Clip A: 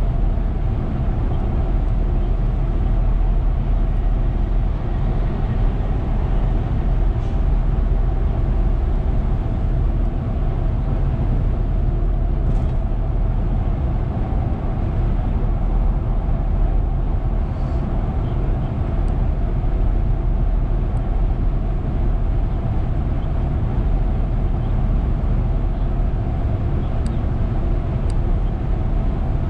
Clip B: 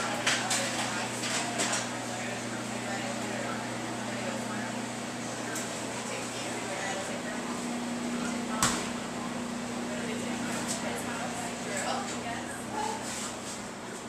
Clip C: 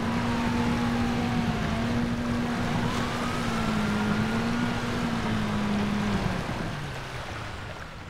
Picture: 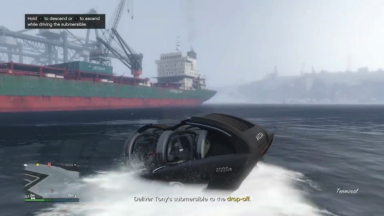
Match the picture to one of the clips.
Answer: C